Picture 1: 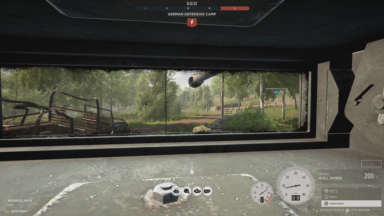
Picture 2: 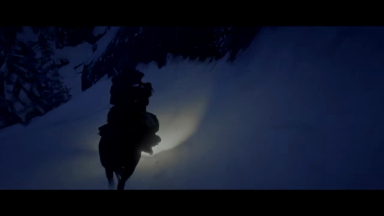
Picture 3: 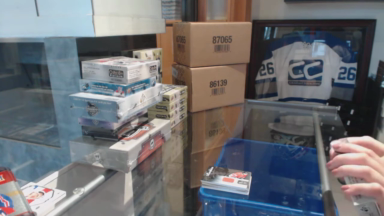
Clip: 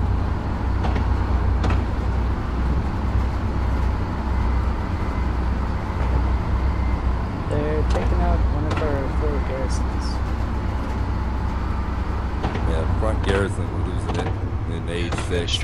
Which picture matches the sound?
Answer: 1